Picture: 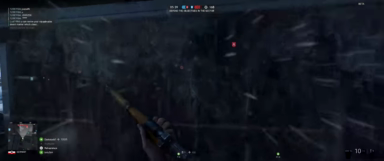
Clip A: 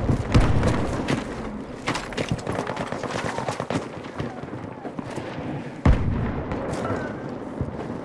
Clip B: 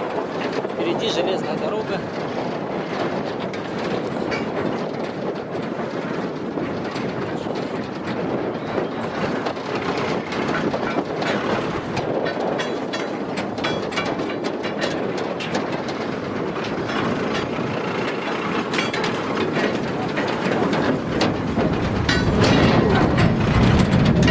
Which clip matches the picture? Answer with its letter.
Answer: A